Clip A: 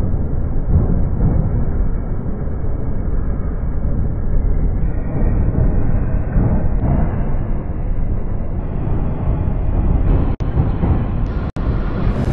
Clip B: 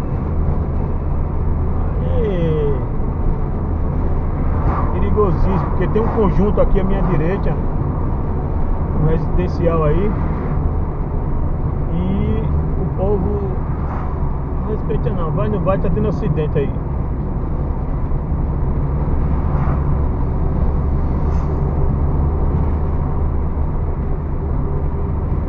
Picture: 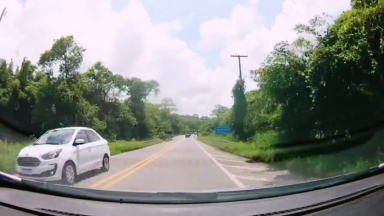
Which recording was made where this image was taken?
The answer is B